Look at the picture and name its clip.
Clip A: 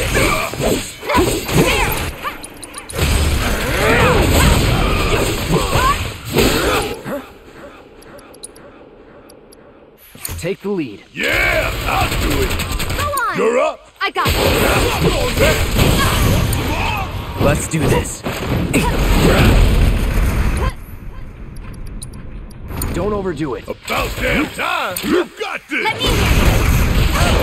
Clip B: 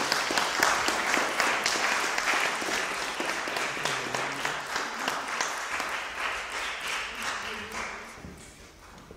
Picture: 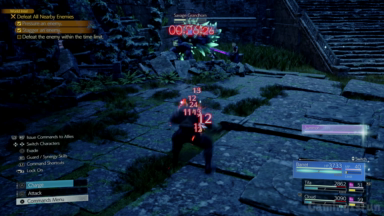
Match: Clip A